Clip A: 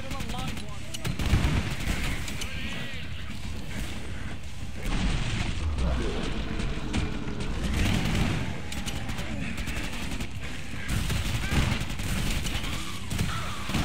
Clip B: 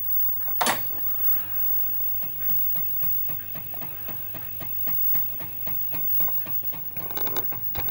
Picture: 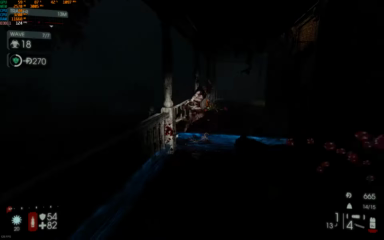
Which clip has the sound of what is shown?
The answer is A